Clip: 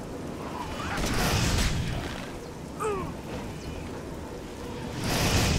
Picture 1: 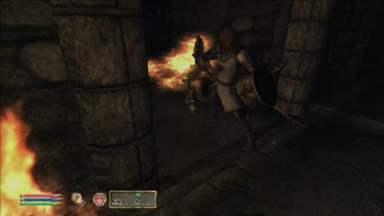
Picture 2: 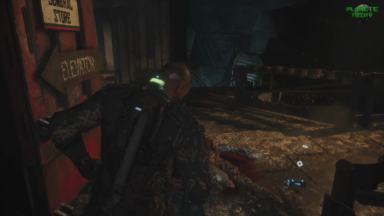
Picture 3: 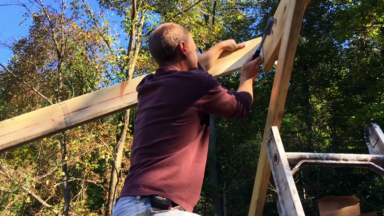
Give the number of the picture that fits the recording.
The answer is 1